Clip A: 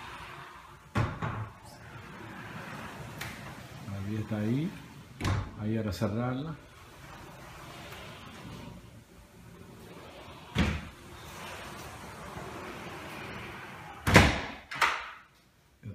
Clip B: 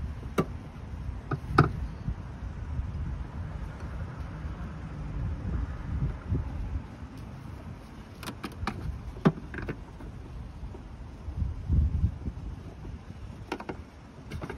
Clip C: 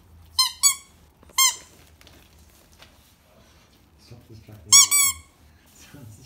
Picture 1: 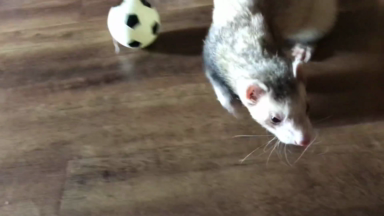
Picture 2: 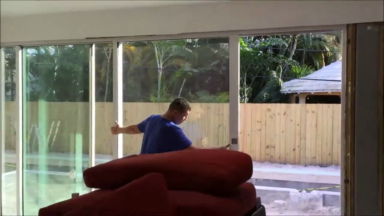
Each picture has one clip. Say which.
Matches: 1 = C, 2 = A